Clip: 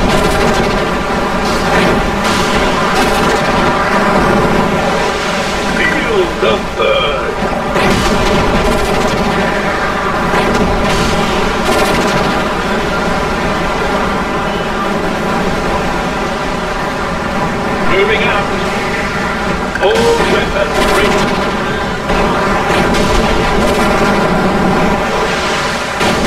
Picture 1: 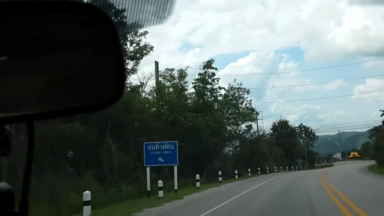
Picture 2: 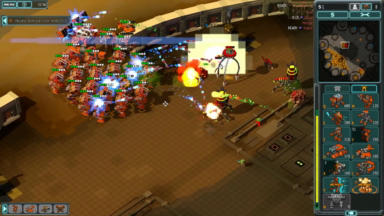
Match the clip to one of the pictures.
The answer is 2